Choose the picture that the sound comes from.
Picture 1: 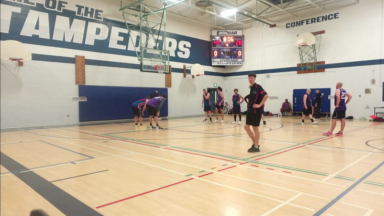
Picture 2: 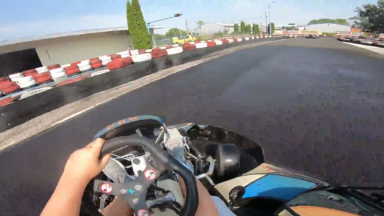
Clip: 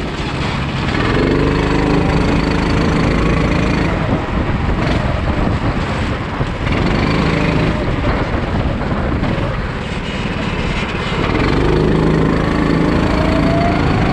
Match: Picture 2